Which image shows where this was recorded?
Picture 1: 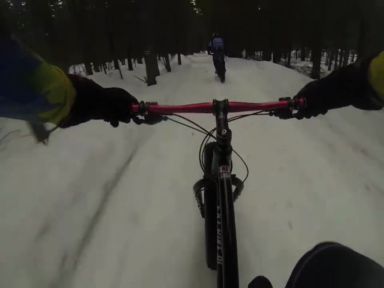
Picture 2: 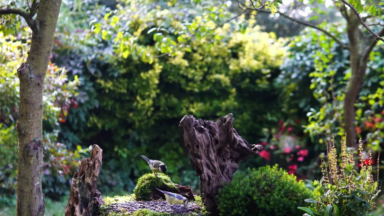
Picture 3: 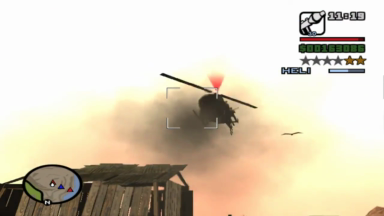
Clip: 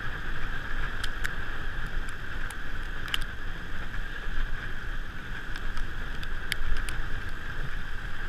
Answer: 1